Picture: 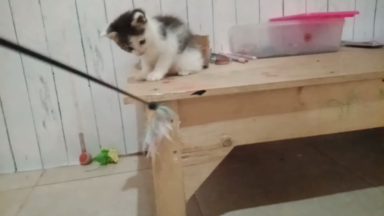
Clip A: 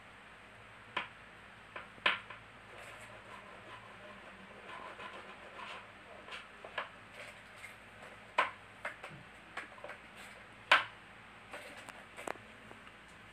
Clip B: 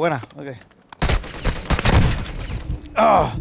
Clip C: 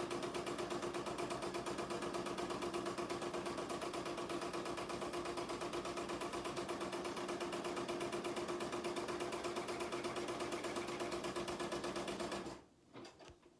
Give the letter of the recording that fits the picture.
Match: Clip A